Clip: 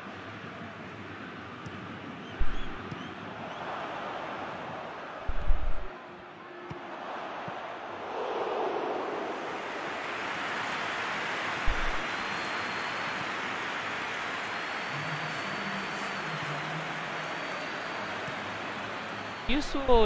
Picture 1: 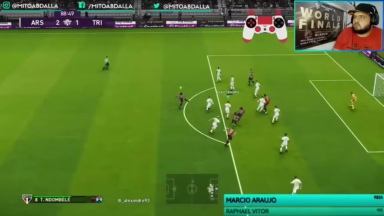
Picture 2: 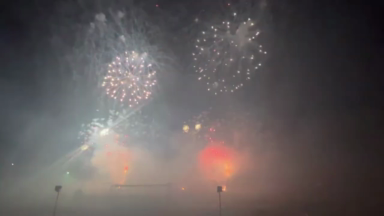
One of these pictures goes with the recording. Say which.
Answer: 1